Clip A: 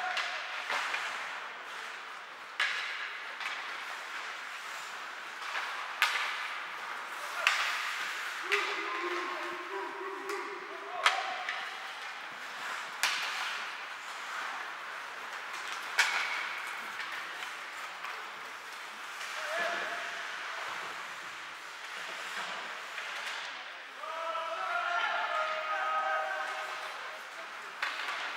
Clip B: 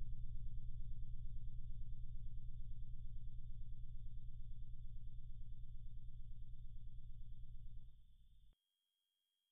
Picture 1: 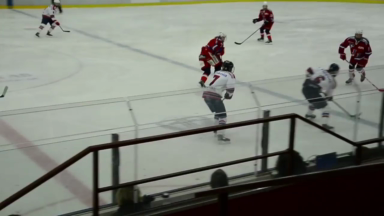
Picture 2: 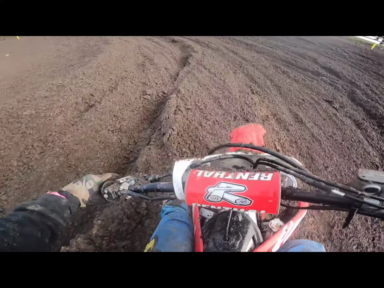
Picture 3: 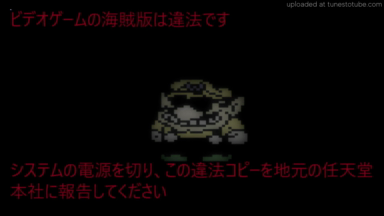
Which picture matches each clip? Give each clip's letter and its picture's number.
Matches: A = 1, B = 3